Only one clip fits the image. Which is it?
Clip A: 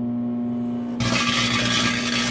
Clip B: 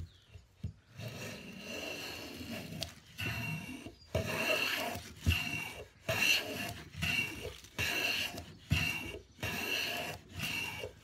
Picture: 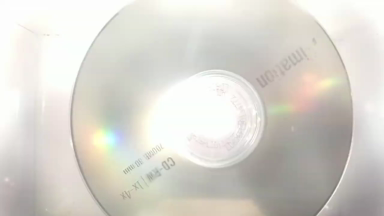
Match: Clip A